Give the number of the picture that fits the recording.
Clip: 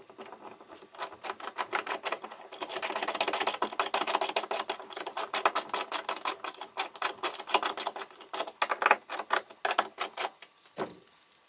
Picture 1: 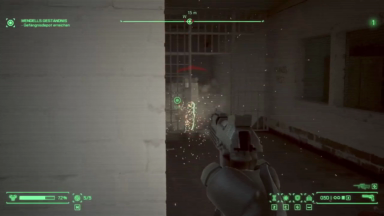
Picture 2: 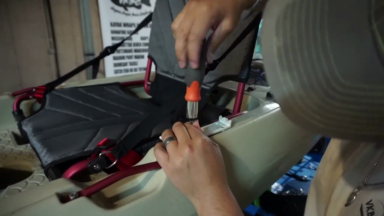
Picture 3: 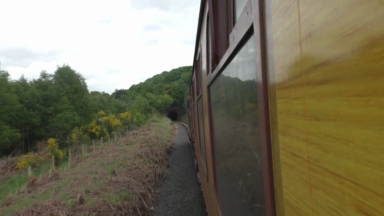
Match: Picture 2